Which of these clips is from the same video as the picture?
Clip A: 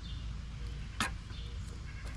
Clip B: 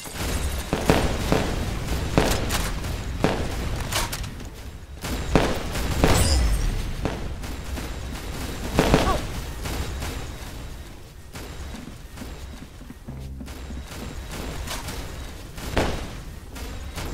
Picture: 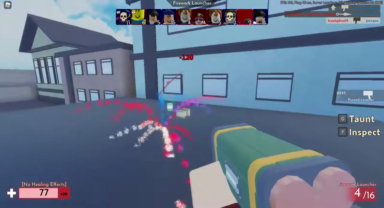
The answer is B